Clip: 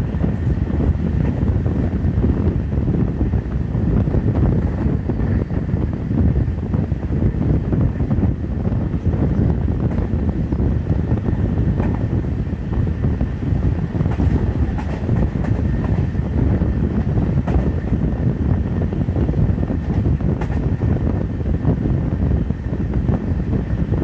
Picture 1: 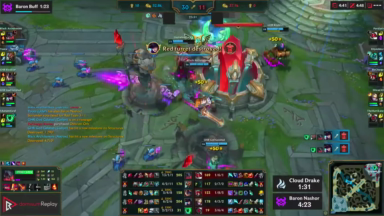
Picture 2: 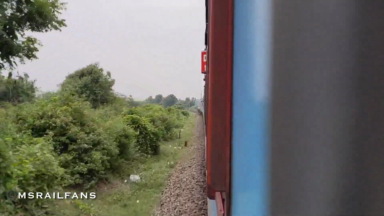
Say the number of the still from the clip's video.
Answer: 2